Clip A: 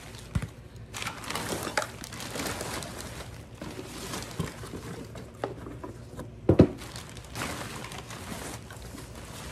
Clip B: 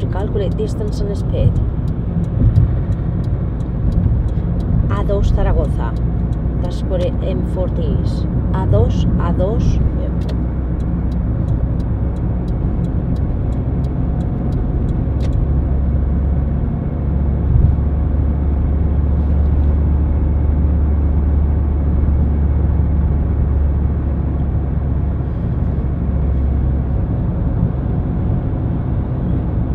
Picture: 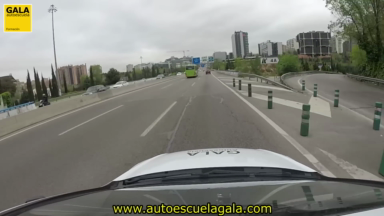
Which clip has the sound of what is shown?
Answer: B